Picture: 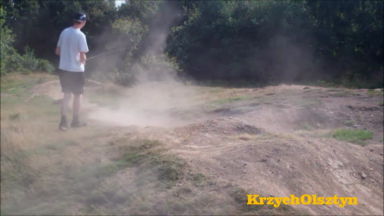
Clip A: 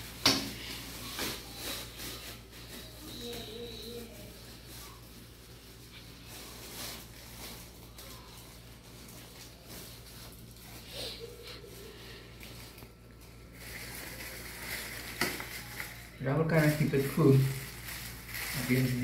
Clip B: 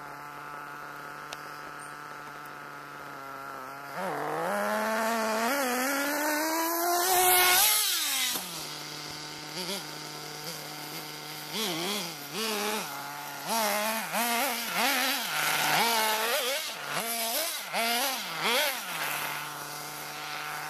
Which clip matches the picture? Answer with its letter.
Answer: B